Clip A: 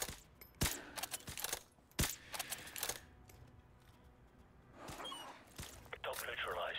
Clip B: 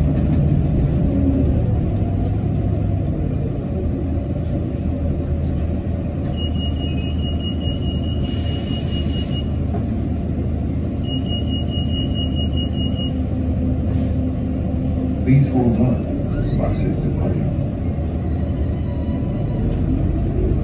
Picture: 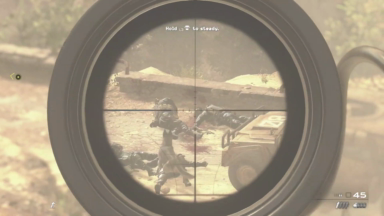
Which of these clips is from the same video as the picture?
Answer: A